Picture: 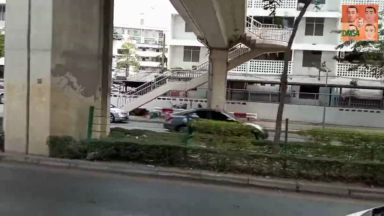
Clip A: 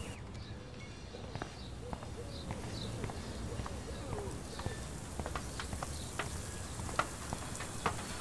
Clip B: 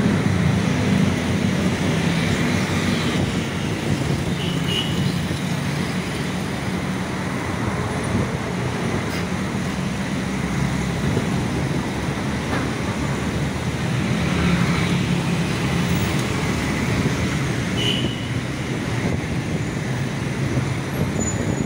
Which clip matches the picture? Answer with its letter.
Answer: B